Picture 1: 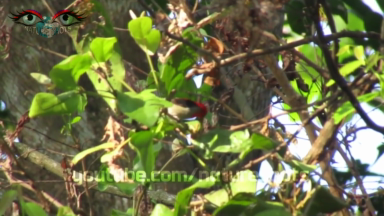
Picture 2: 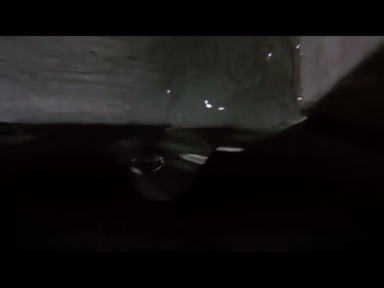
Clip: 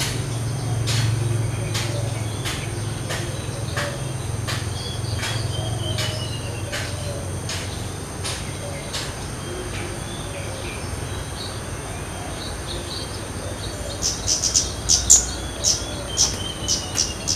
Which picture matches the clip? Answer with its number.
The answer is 1